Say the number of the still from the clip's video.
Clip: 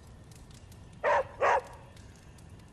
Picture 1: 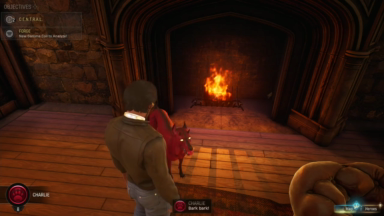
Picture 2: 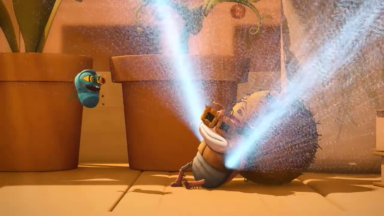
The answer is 1